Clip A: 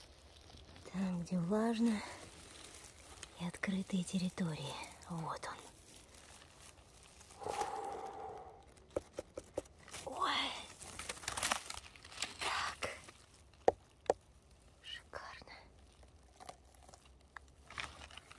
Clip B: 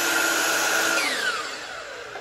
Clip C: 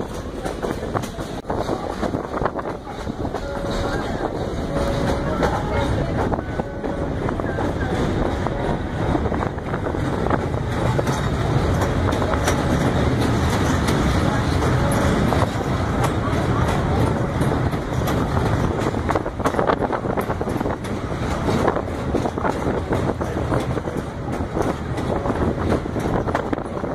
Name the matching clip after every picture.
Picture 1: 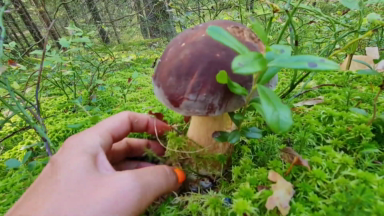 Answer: A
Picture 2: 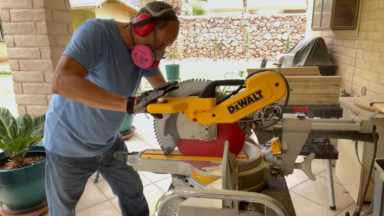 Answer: B